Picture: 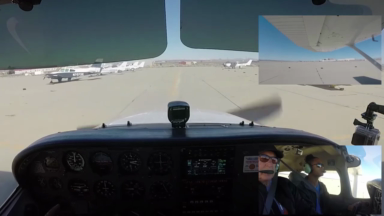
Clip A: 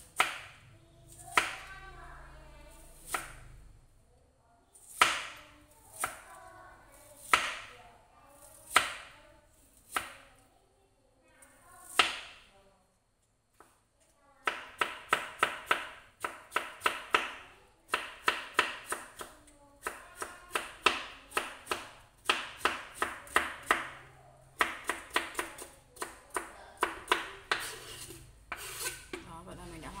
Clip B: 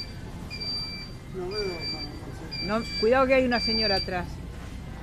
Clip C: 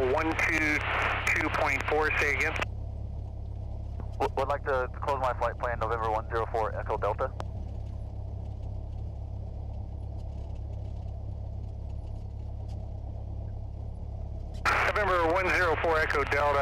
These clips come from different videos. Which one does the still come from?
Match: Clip C